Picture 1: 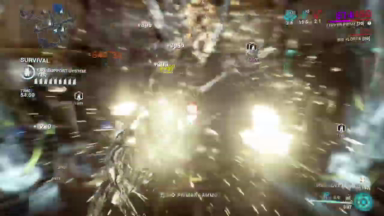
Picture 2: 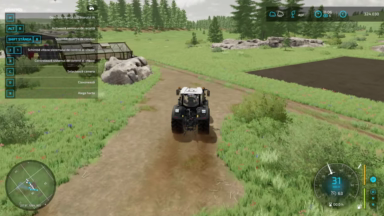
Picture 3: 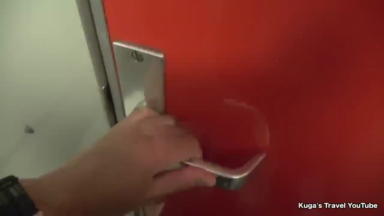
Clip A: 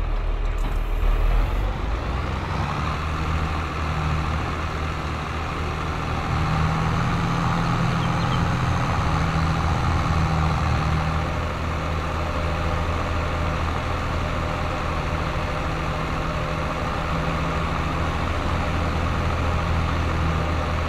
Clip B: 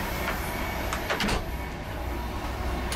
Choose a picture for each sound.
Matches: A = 2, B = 3